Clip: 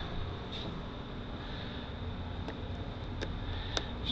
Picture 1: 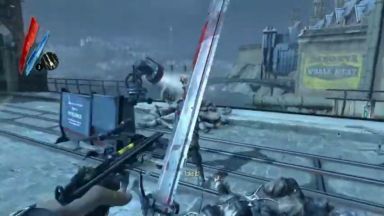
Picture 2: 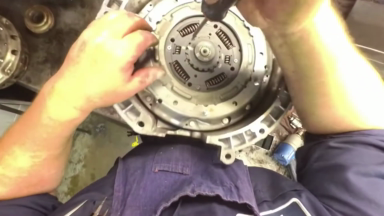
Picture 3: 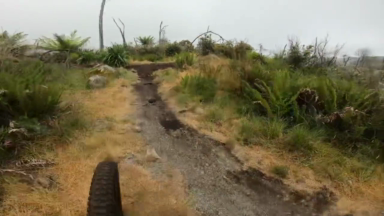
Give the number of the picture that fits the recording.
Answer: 2